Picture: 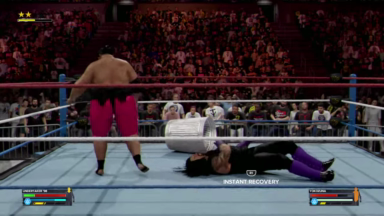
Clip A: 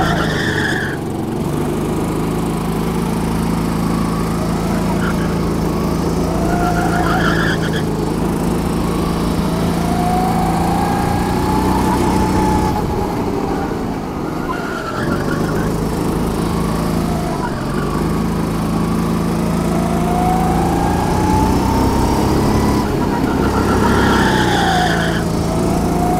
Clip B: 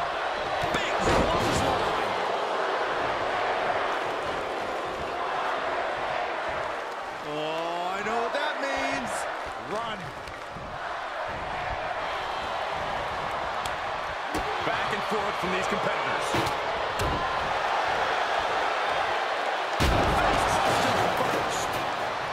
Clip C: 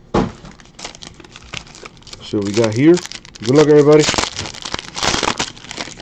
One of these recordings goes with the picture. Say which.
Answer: B